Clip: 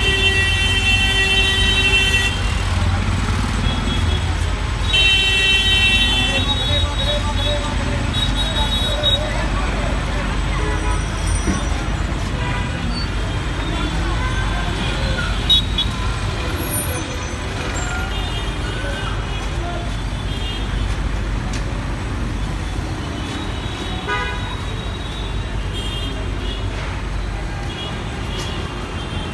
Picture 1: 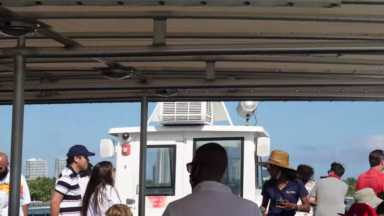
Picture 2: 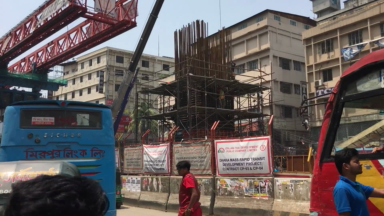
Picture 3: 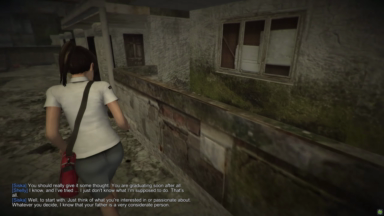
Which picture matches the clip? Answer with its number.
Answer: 2